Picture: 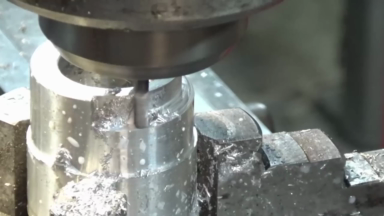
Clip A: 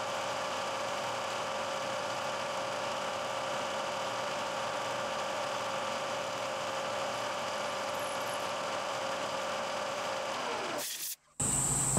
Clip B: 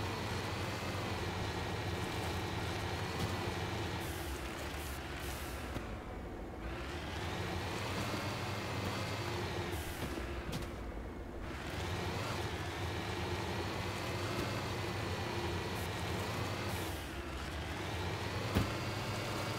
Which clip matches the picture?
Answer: A